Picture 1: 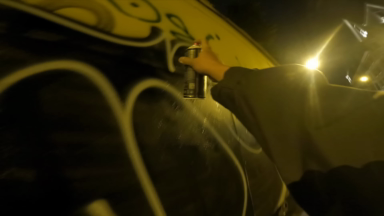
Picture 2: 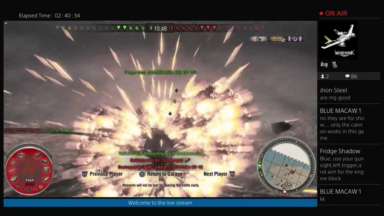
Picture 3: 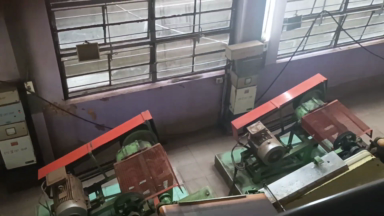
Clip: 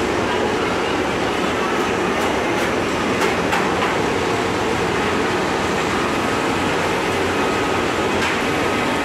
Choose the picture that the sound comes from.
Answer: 3